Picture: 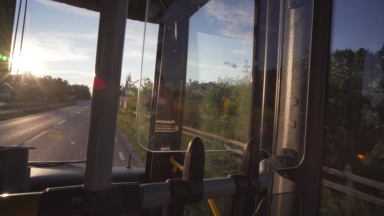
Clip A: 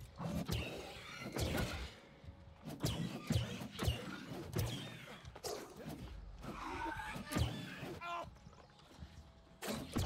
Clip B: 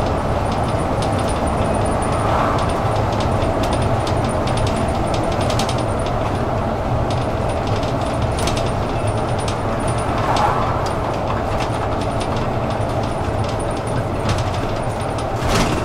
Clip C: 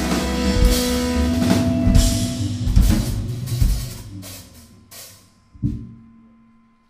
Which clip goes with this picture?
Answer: B